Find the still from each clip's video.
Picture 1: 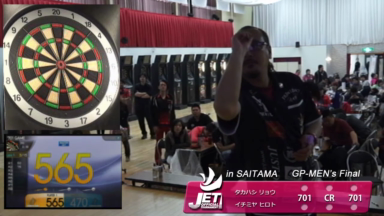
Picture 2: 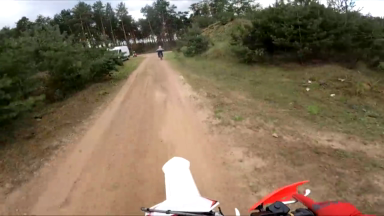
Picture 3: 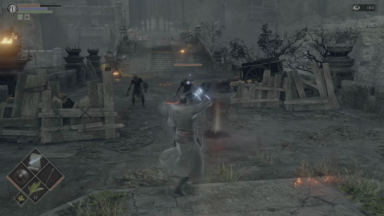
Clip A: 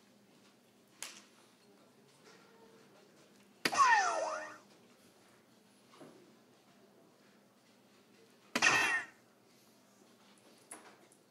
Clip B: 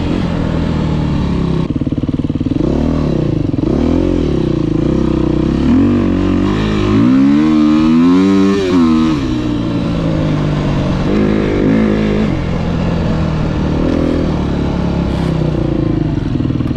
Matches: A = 1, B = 2